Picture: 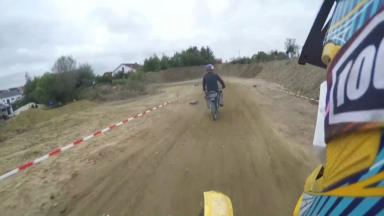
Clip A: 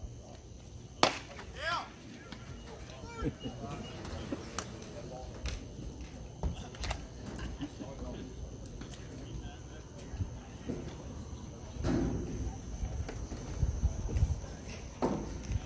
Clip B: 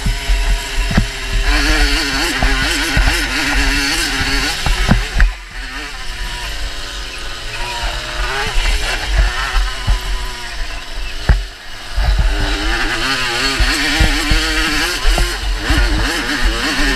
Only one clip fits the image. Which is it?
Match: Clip B